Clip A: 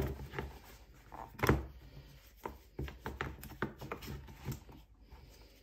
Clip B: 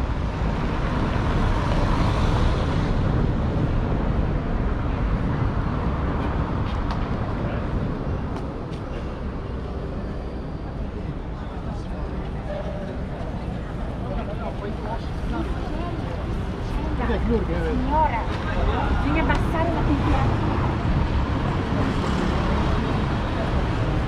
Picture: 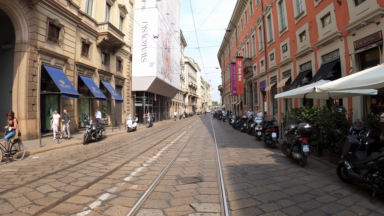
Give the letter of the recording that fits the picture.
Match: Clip B